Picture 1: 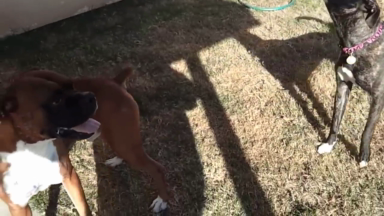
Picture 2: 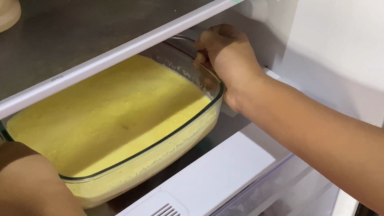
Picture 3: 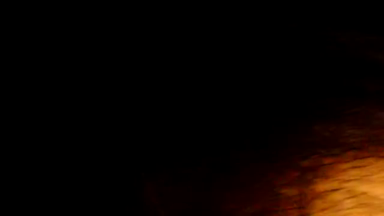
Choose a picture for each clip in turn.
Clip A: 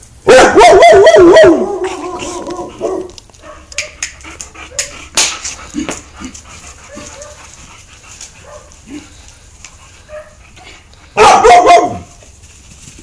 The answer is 1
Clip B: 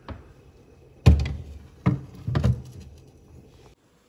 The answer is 2